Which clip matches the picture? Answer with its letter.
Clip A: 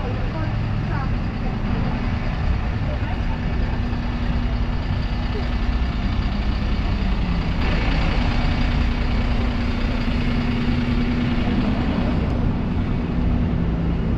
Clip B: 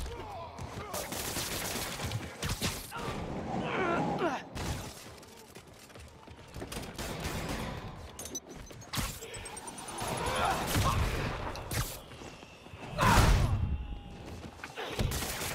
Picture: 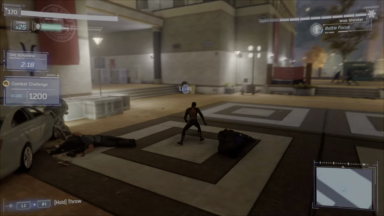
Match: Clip B